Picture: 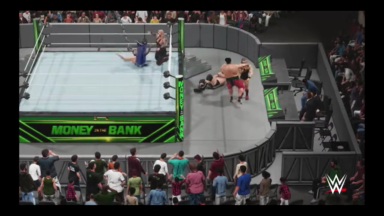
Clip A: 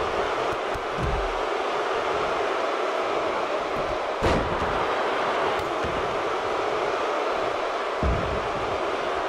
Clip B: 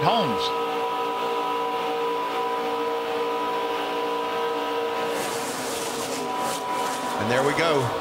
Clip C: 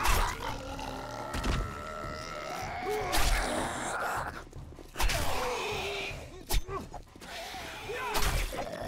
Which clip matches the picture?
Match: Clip A